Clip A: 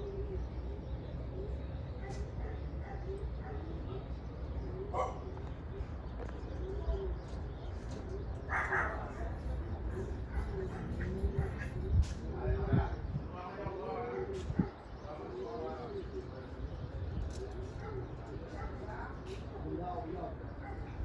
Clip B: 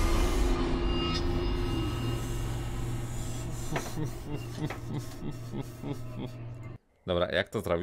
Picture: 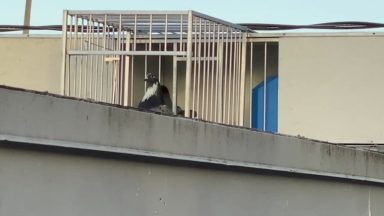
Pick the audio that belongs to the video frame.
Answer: A